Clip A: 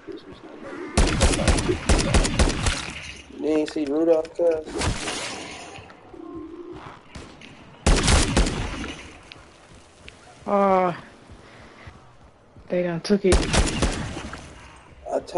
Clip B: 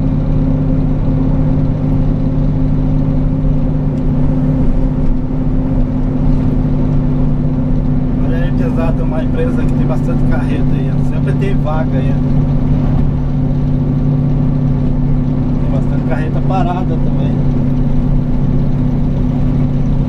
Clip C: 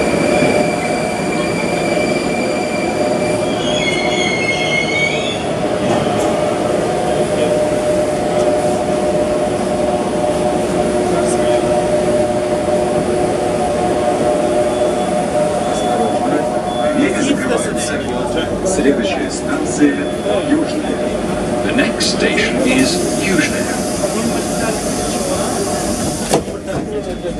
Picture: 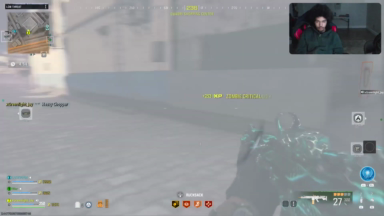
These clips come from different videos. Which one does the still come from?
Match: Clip A